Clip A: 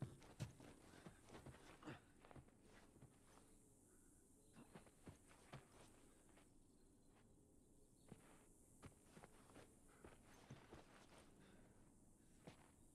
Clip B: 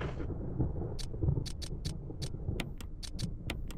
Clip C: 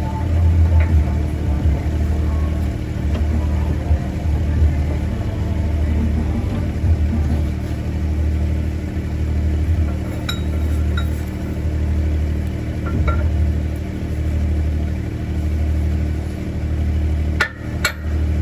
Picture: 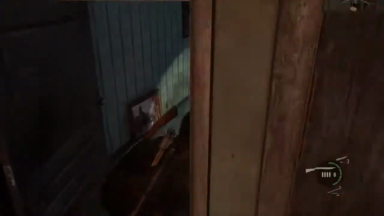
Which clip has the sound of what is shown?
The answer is A